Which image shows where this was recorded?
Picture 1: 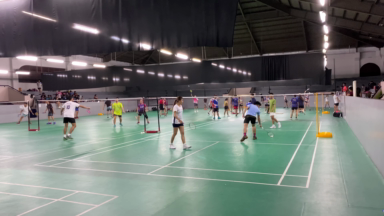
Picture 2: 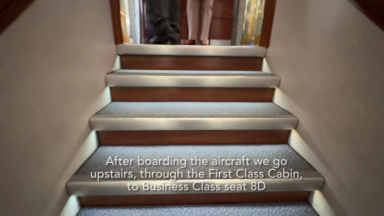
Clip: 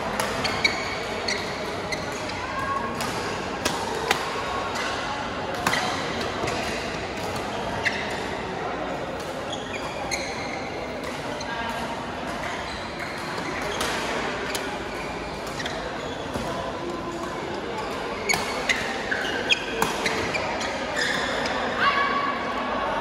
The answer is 1